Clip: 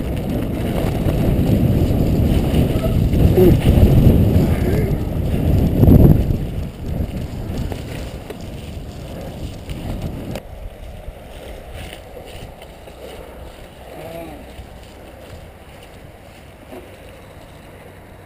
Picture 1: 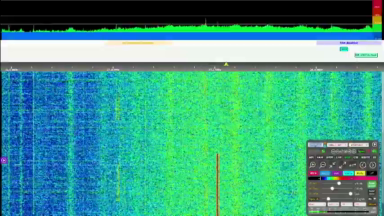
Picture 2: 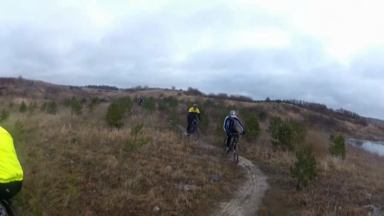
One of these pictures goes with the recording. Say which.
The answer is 2